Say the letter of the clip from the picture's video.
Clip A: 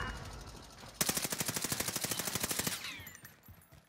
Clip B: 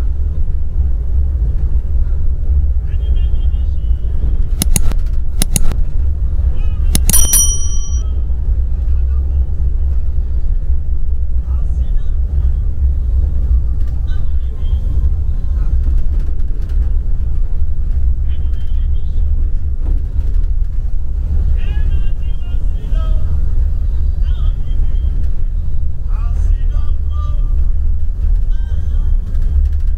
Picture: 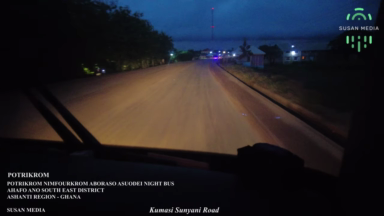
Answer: B